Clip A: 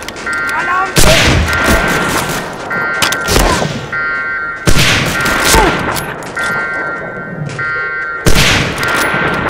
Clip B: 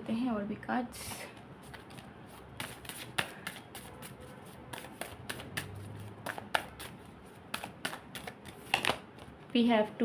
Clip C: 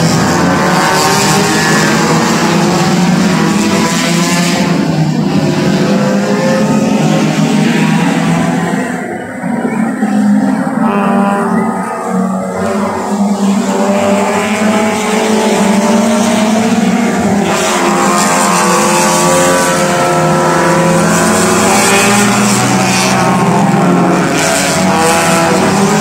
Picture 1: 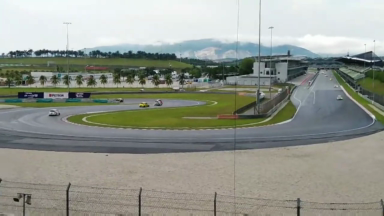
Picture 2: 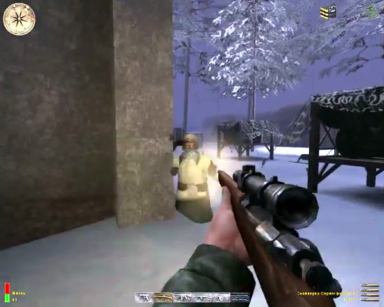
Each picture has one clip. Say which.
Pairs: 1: C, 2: A